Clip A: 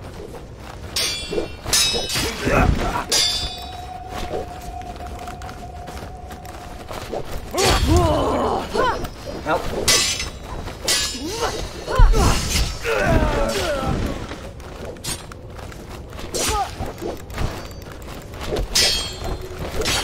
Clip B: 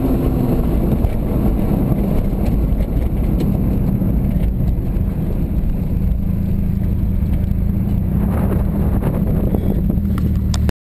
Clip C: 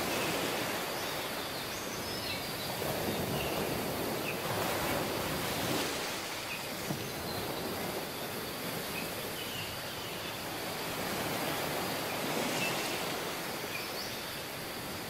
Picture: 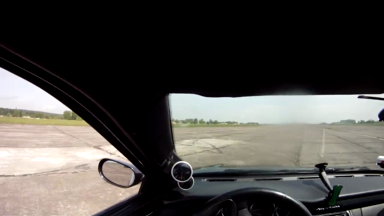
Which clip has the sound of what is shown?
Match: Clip B